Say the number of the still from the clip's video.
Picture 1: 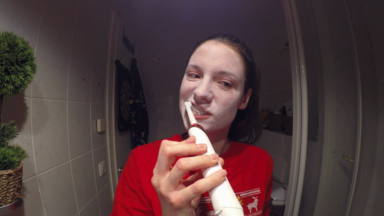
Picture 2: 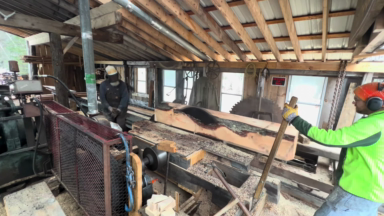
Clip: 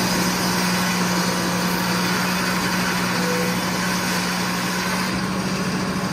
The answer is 2